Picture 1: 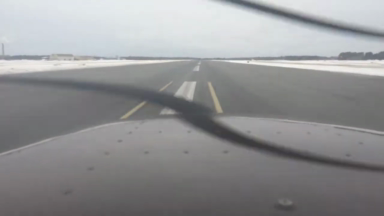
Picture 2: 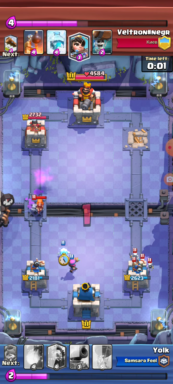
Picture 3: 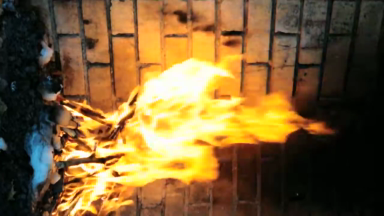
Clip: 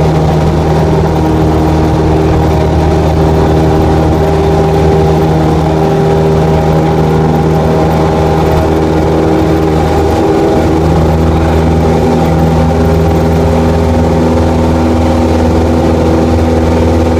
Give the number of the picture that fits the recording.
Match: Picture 1